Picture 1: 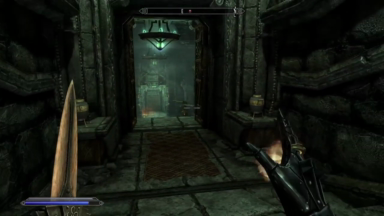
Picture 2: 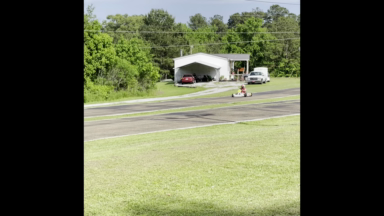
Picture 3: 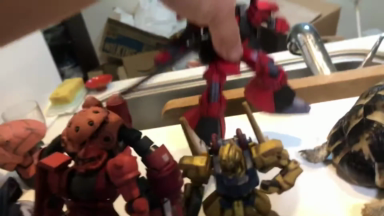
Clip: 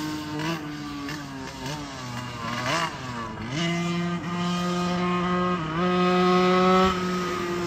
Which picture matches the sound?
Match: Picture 2